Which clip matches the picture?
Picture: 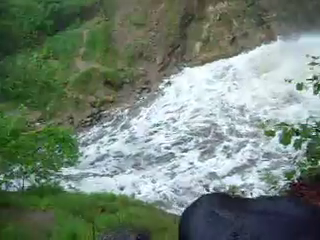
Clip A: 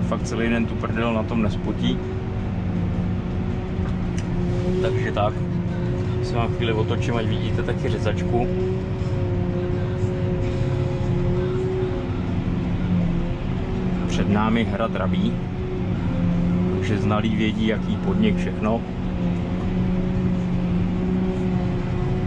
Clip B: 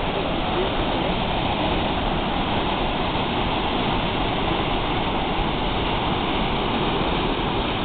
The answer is B